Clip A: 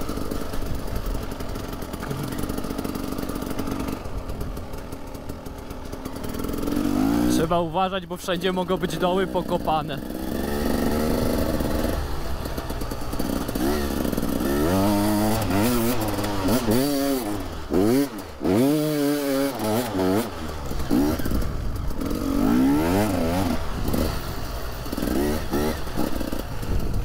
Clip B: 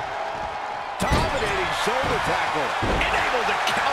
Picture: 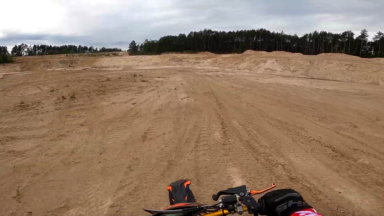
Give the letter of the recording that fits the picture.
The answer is A